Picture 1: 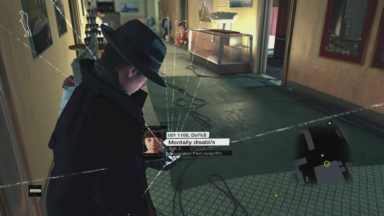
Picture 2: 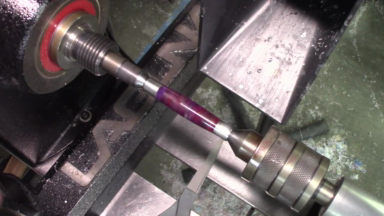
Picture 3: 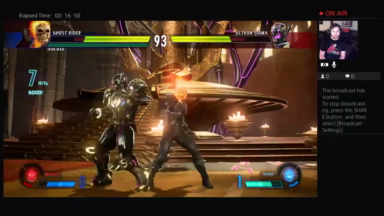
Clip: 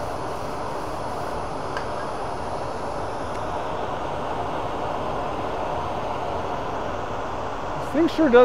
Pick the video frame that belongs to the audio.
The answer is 2